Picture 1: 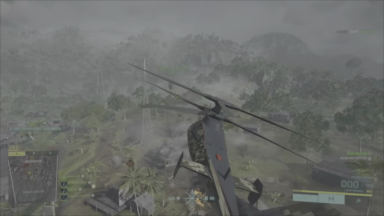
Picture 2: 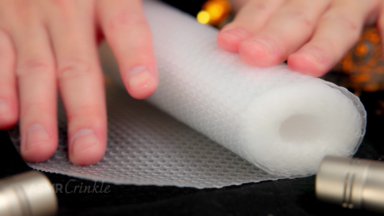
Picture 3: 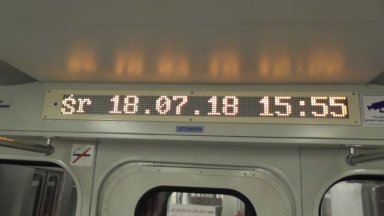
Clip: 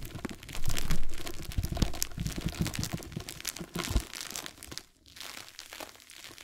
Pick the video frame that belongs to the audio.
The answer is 2